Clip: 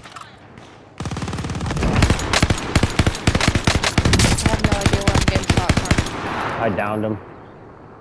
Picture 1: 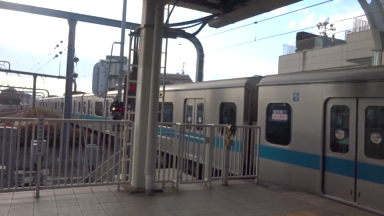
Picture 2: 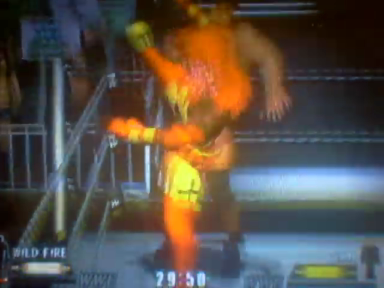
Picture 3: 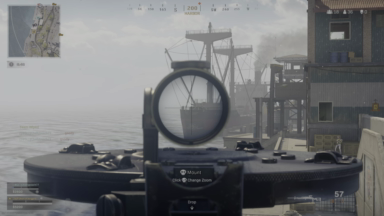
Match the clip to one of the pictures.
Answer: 3